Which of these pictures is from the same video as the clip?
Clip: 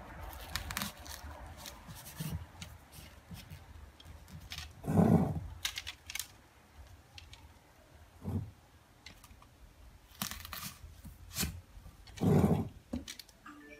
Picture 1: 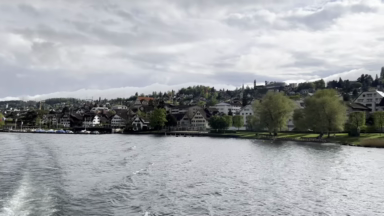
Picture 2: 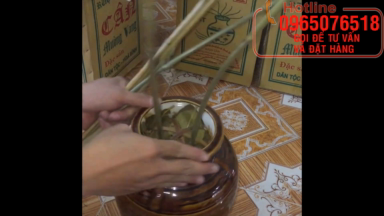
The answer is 2